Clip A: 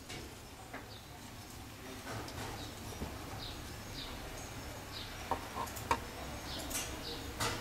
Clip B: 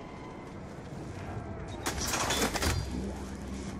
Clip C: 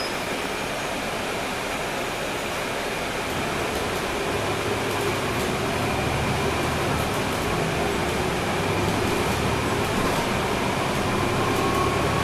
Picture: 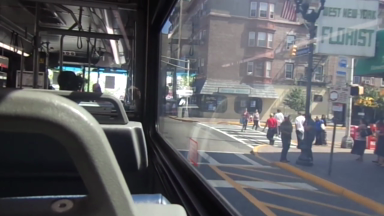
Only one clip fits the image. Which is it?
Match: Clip C